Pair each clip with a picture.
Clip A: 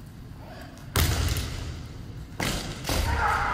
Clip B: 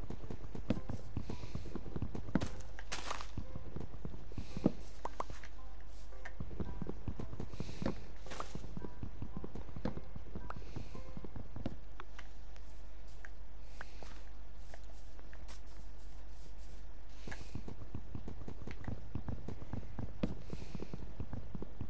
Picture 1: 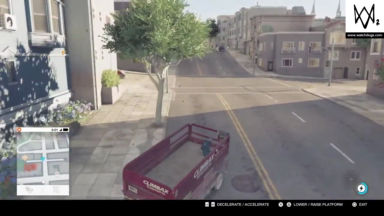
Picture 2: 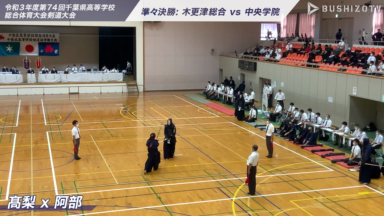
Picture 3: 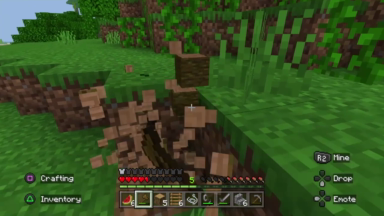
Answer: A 2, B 3